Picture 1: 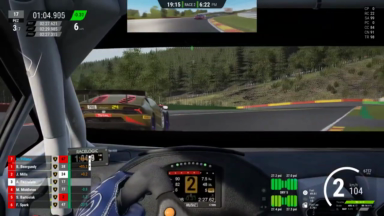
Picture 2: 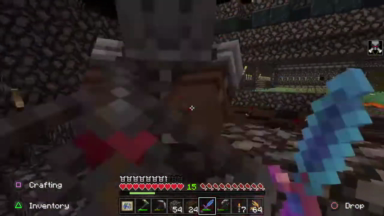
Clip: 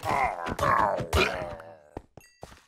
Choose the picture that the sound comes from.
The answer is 2